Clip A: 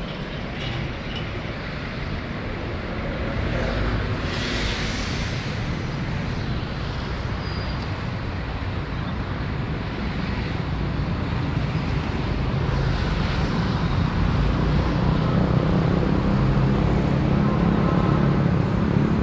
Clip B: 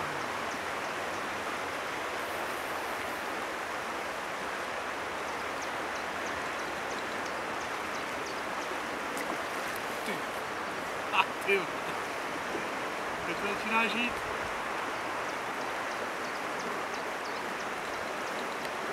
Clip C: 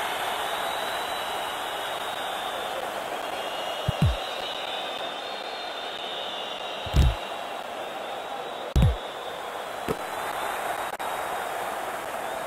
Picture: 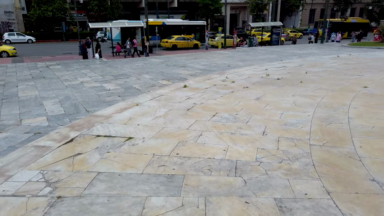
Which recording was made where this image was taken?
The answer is A